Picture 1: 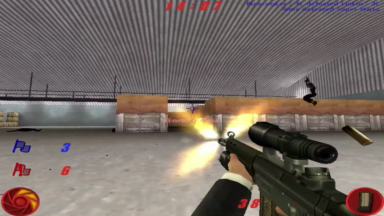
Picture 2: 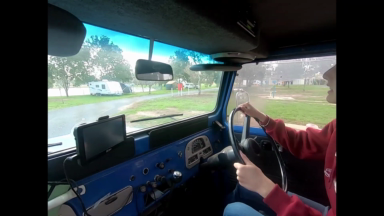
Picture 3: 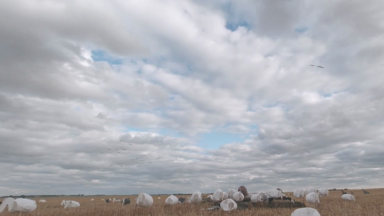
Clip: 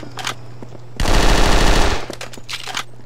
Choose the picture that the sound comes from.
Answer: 1